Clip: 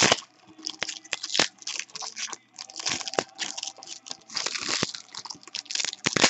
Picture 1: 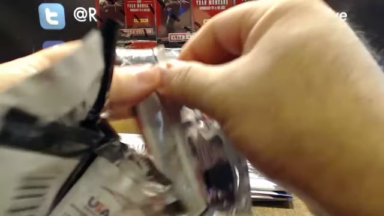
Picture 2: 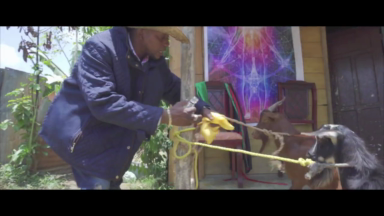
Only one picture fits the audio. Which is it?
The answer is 1